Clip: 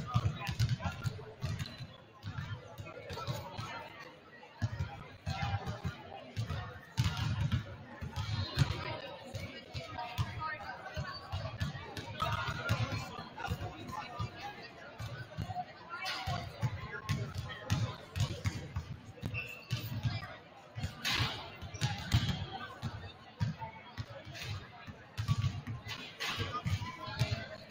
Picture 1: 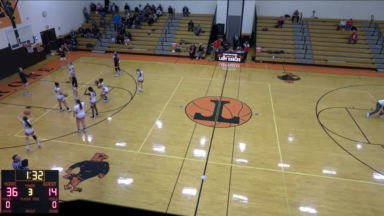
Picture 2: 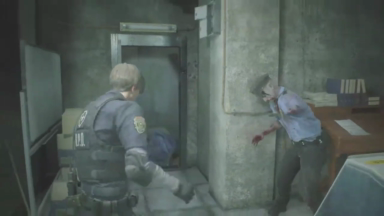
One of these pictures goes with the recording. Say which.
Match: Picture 1